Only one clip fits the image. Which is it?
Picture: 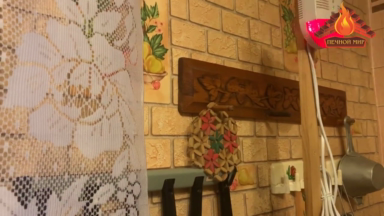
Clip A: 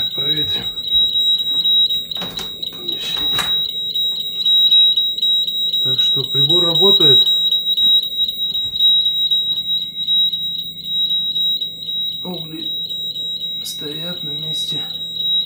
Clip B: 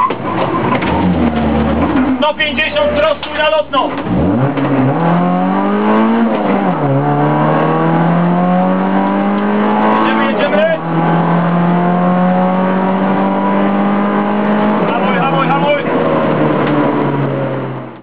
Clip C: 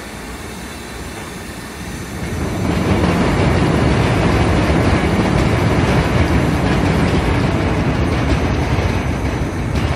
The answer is A